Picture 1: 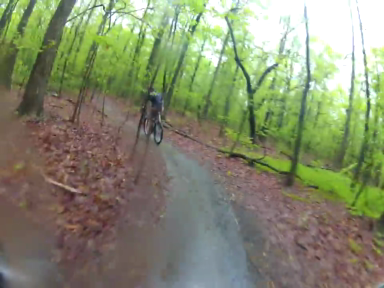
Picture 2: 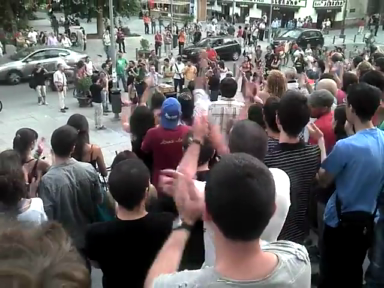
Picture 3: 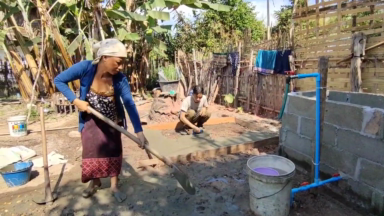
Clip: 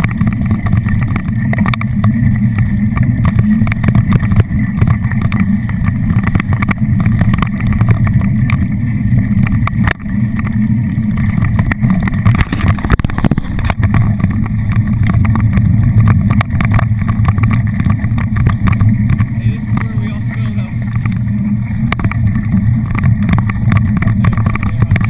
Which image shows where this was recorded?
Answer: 1